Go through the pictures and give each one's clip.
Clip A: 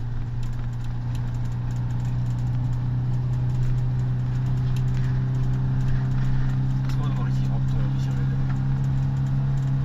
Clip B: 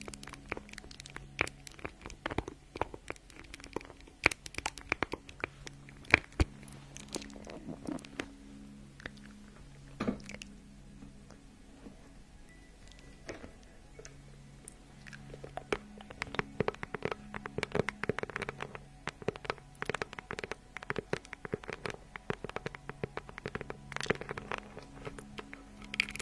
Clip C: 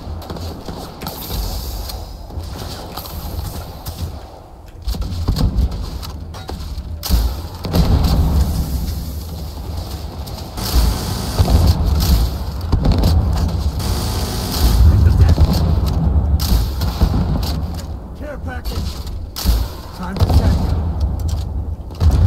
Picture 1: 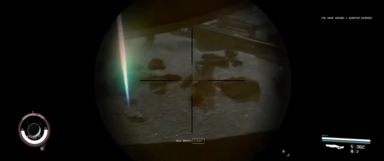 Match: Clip C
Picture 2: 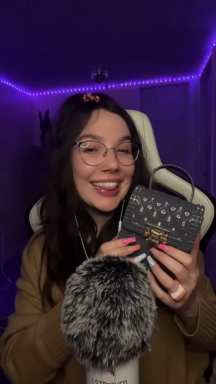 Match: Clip B